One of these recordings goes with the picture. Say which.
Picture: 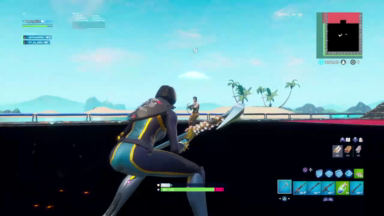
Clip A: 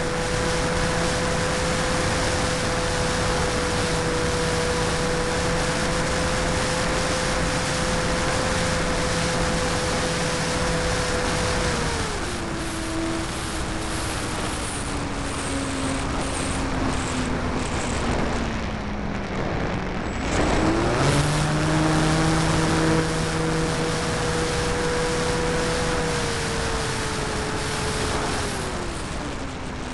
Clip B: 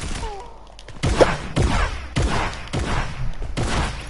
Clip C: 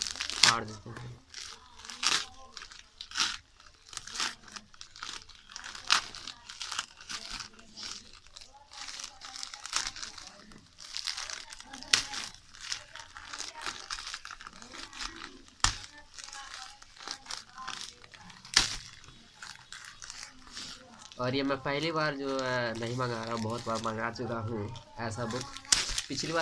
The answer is B